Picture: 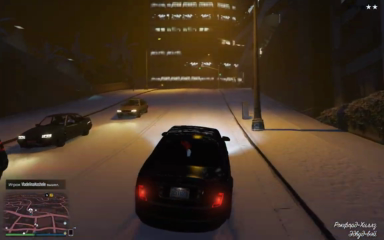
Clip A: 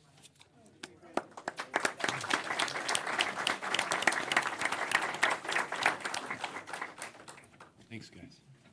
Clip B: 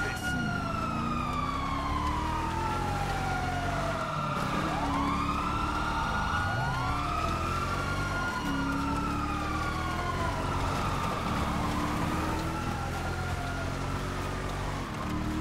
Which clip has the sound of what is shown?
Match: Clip B